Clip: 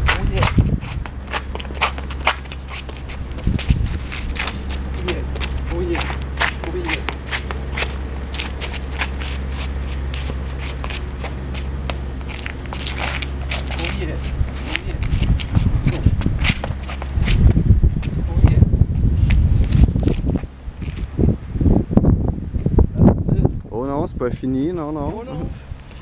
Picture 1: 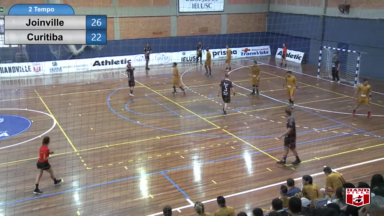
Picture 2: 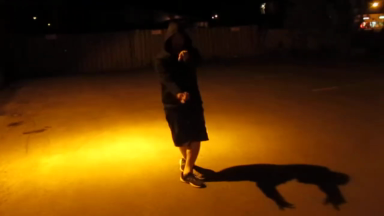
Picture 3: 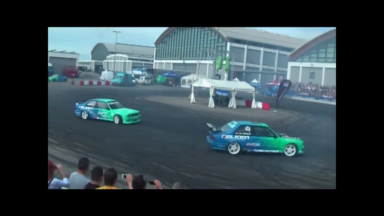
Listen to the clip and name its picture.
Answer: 2